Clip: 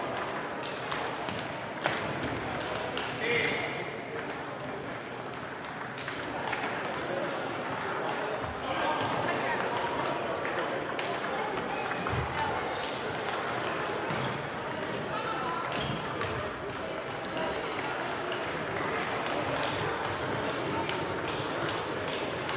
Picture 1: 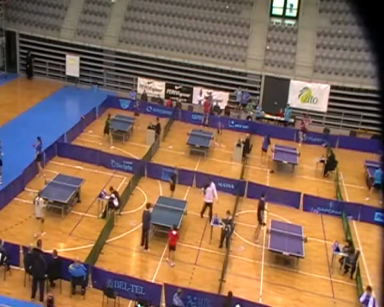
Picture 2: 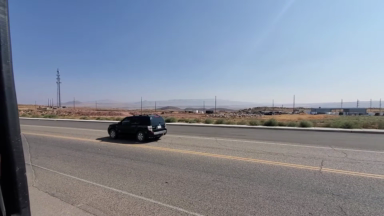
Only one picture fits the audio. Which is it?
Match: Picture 1